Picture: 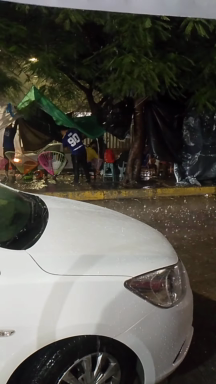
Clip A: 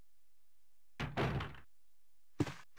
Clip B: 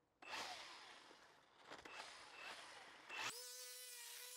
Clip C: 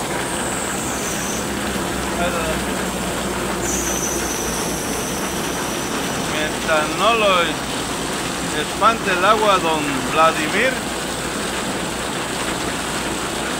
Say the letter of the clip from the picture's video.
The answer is C